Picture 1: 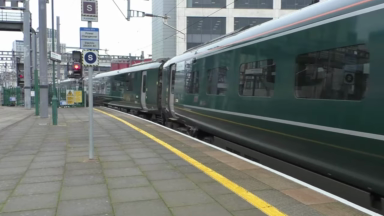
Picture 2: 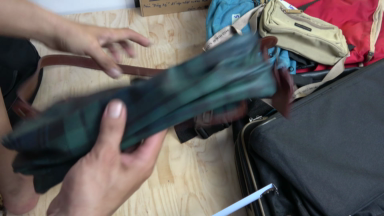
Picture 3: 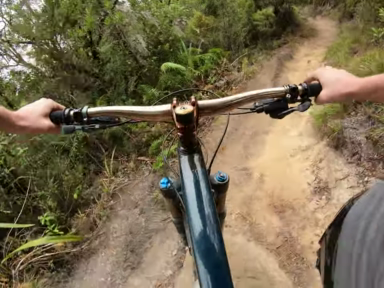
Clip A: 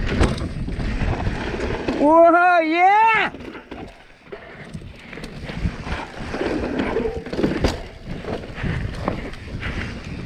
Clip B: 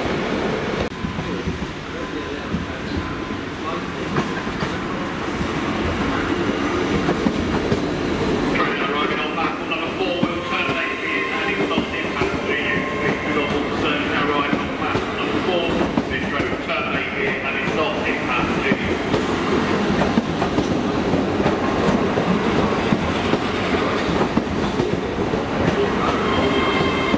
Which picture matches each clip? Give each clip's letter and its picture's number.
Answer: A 3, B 1